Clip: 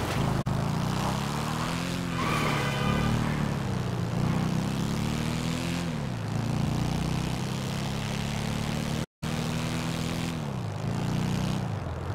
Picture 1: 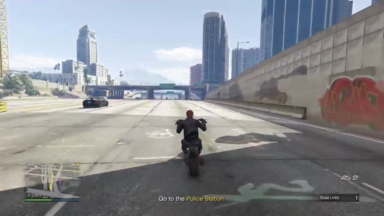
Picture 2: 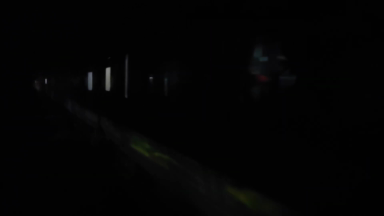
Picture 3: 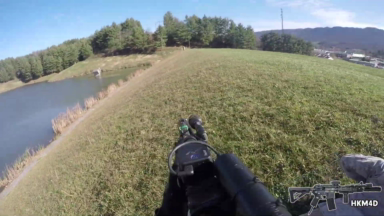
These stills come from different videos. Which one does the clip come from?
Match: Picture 1